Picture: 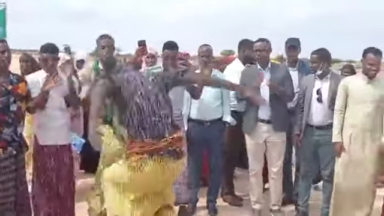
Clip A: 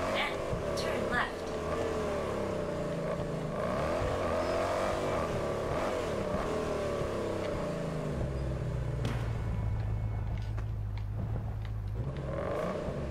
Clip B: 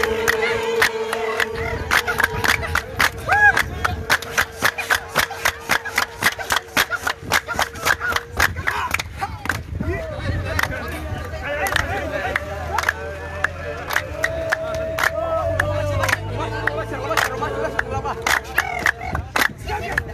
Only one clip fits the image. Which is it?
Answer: B